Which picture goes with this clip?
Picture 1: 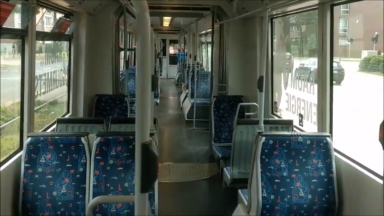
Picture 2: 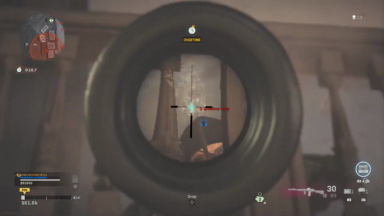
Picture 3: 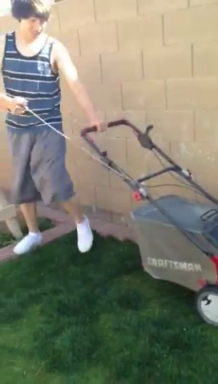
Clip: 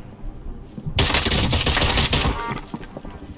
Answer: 2